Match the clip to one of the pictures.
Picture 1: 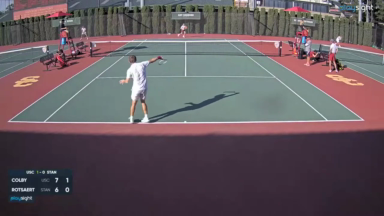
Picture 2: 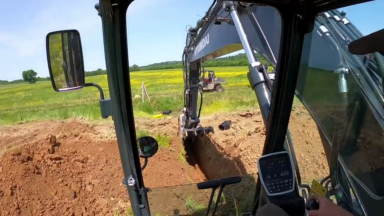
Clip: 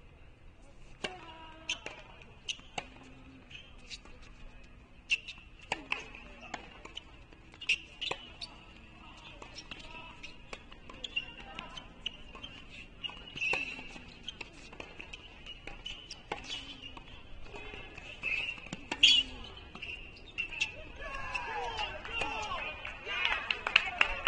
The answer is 1